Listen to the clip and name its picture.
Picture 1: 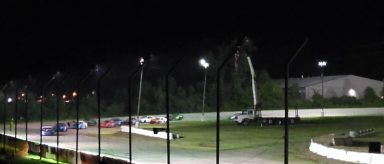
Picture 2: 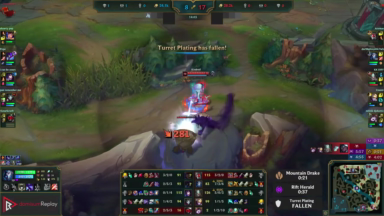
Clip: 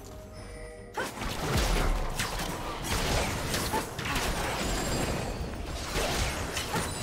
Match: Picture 2